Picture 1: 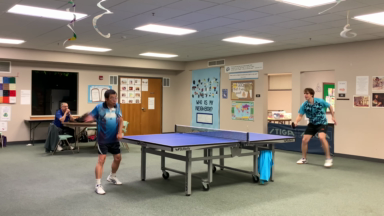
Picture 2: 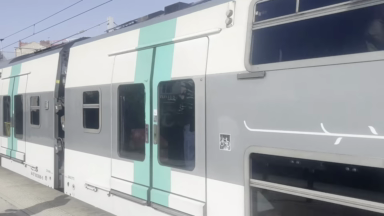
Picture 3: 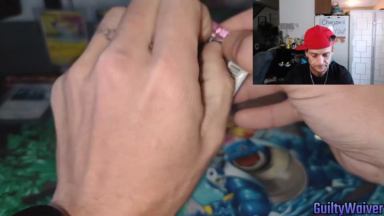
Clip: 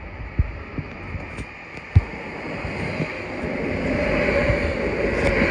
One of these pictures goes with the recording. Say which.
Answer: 2